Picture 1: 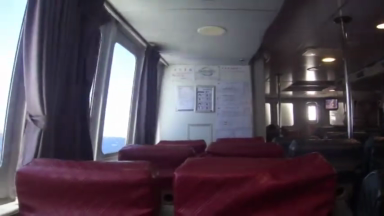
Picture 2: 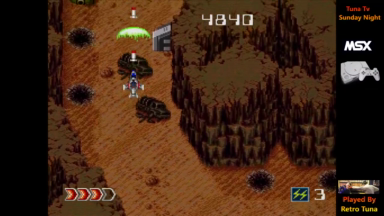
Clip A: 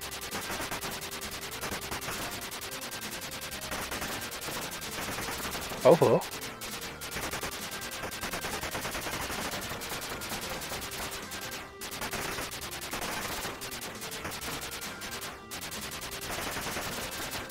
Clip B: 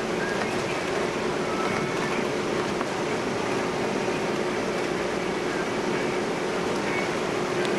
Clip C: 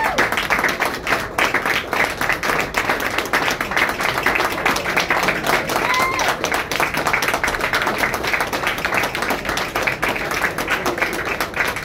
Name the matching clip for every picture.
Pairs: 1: B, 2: A